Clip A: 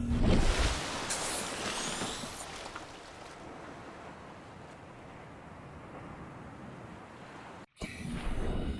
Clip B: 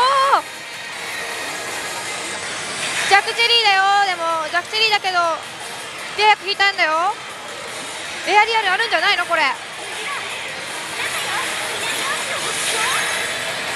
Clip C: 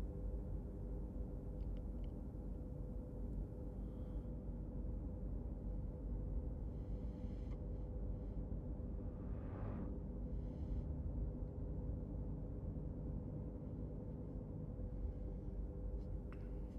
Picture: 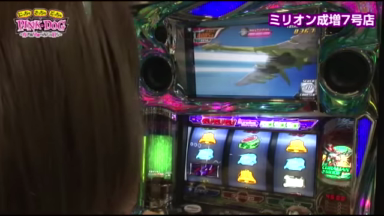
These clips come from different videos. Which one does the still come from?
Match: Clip B